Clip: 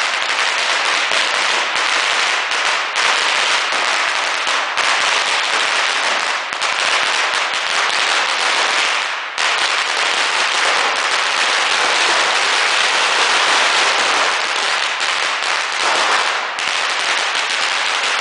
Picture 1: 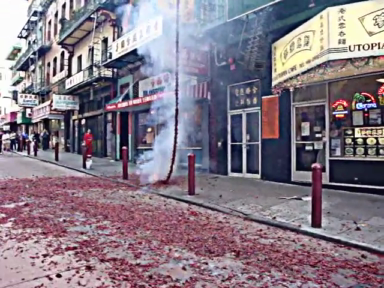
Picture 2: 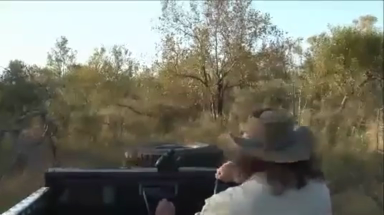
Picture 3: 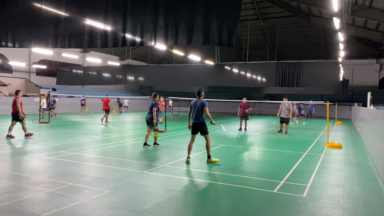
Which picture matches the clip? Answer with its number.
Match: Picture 1